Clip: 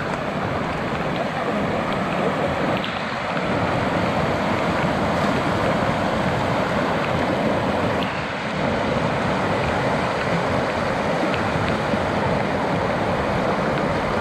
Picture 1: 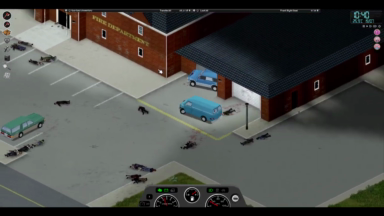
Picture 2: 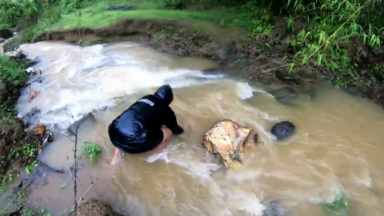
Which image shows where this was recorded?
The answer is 2